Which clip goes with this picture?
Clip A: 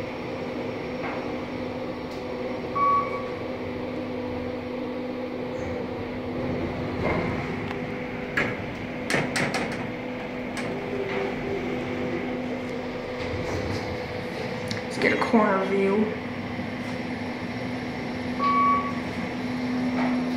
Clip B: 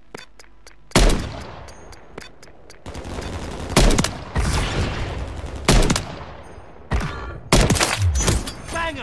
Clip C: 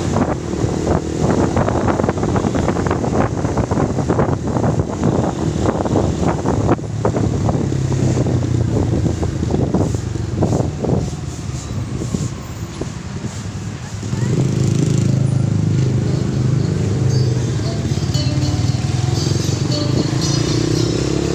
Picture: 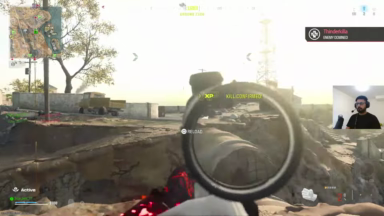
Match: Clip B